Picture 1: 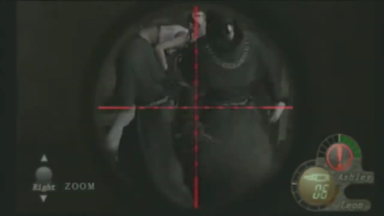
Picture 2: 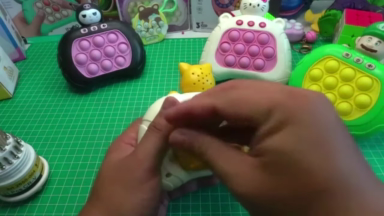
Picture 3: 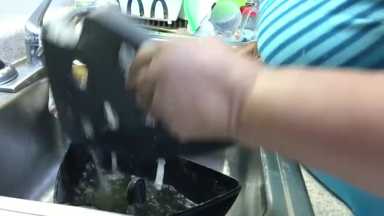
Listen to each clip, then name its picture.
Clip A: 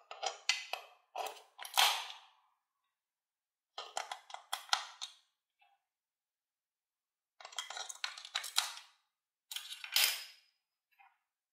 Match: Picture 2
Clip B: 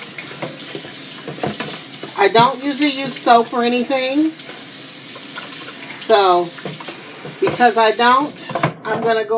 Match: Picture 3